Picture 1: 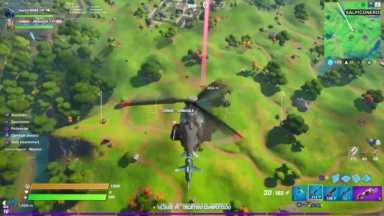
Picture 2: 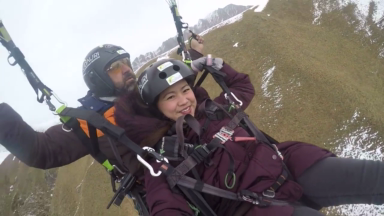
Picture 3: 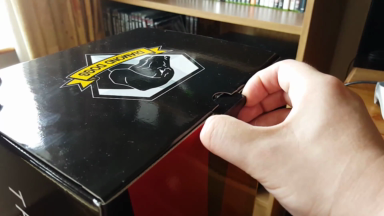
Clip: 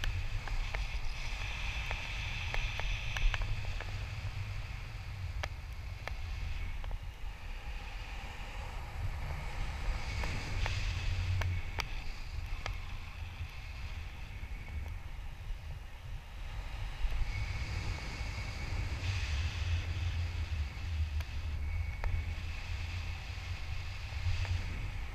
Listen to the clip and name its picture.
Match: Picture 2